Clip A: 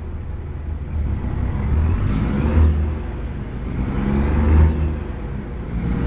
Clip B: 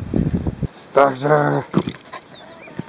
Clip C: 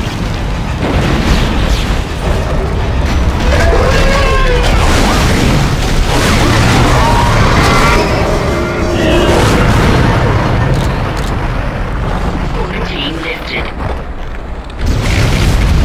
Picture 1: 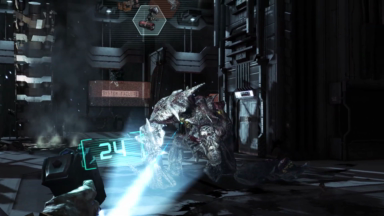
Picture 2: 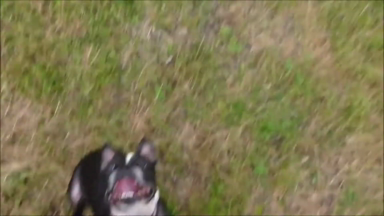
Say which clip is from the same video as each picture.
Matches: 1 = C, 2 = B